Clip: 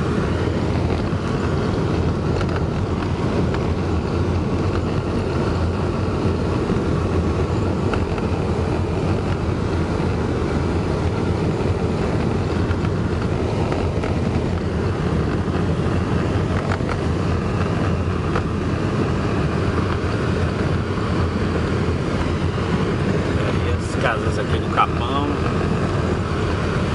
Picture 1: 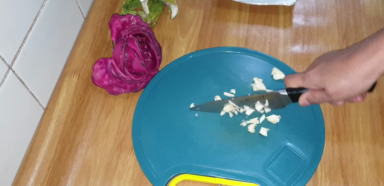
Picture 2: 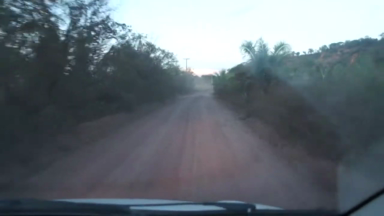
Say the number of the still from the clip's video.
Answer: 2